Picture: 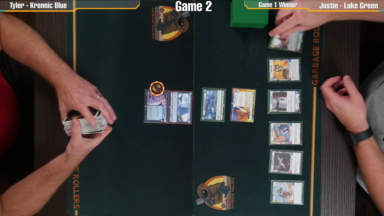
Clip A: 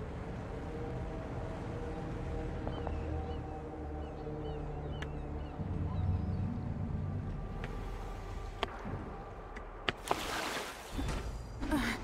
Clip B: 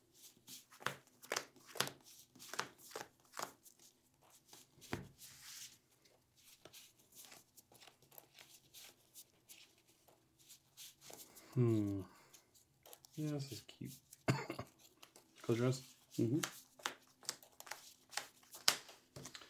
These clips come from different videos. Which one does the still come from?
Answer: B